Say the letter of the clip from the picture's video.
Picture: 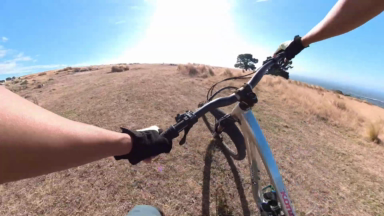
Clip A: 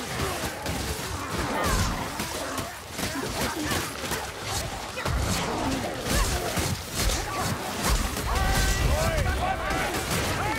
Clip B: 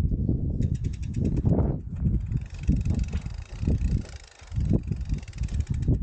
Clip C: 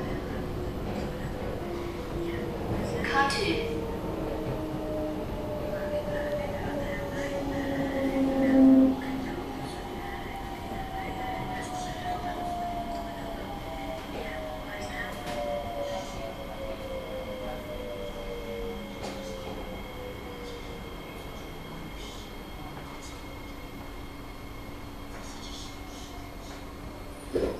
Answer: B